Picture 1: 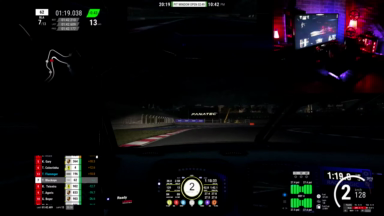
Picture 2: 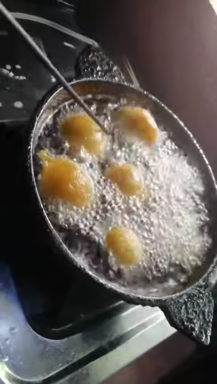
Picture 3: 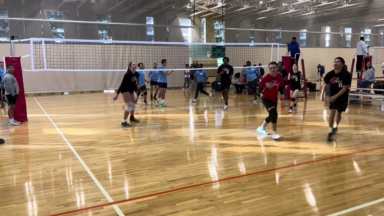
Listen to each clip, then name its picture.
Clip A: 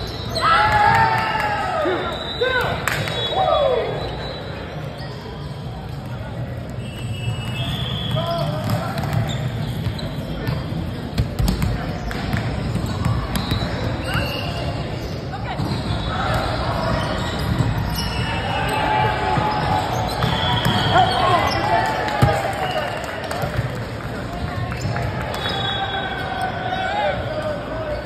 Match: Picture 3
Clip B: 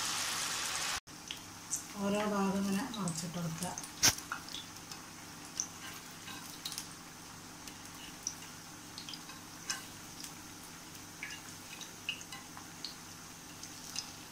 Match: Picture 2